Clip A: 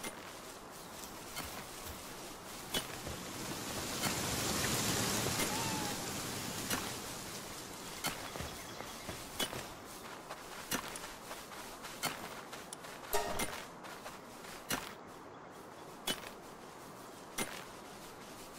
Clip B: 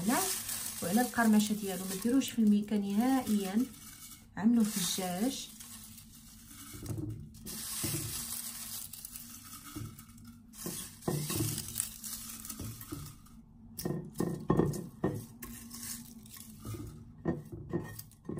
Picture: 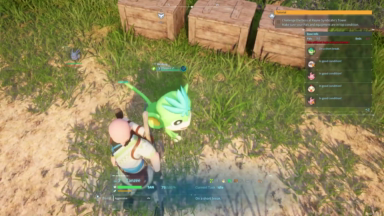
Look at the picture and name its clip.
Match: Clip A